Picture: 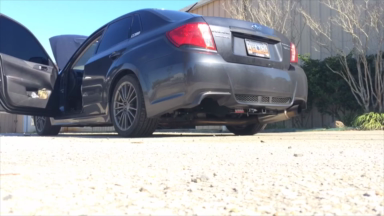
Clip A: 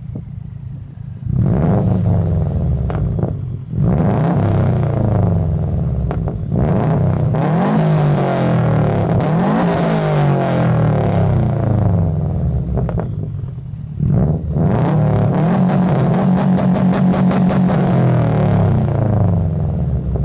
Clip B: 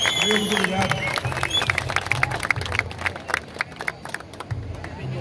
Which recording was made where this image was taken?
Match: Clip A